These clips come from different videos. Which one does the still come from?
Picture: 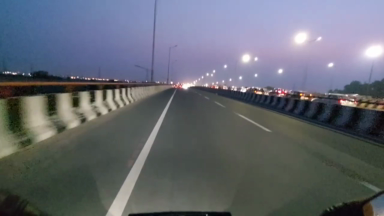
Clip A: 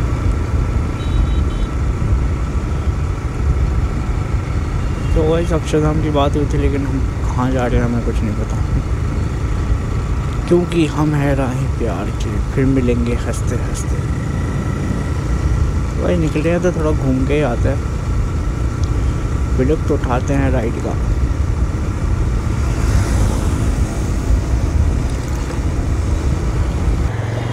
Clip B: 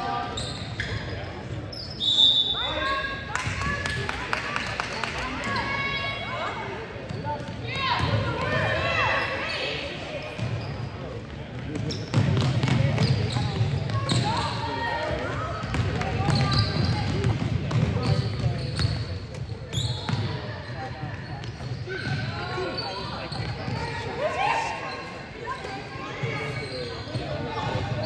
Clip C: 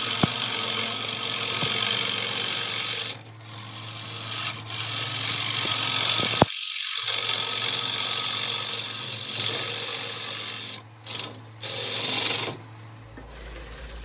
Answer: A